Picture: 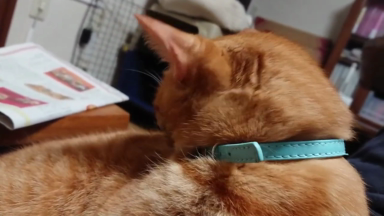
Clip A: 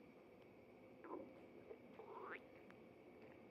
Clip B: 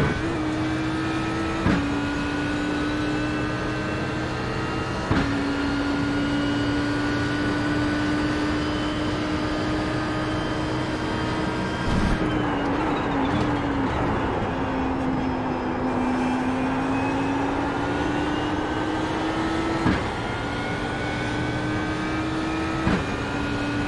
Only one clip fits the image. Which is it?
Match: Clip A